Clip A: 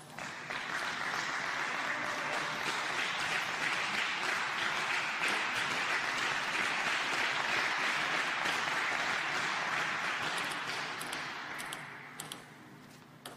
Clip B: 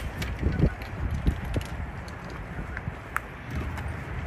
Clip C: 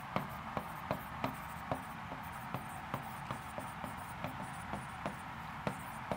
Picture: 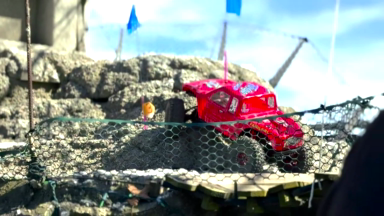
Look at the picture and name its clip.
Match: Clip B